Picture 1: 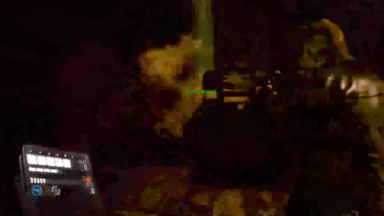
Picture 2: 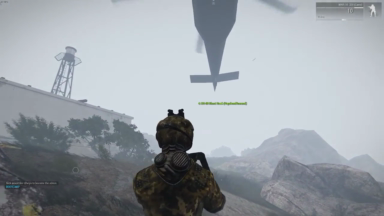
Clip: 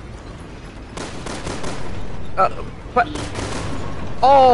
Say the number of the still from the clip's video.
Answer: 1